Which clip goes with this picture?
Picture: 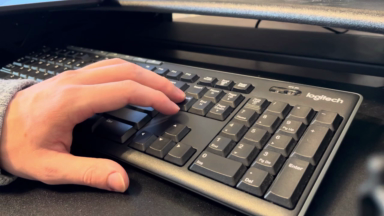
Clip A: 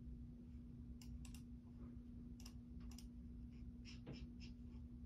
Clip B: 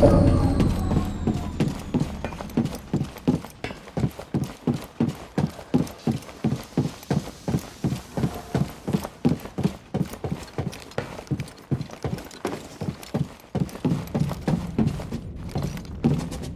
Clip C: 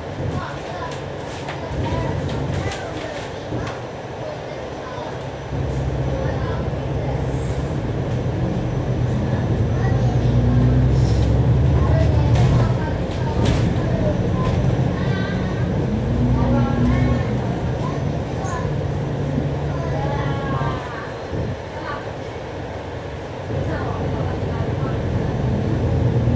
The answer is A